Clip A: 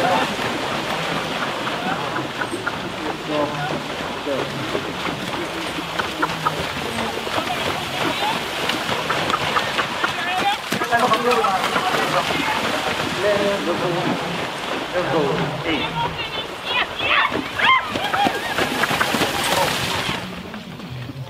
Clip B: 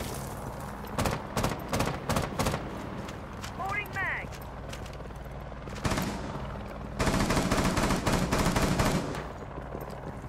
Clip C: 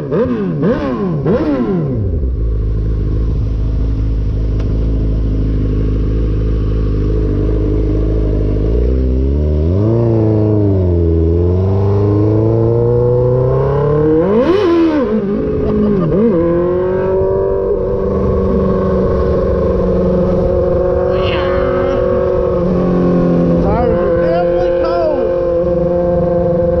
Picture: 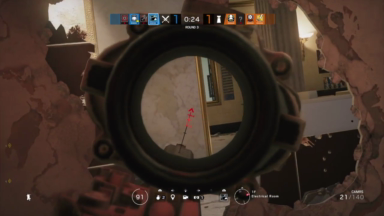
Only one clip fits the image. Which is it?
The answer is B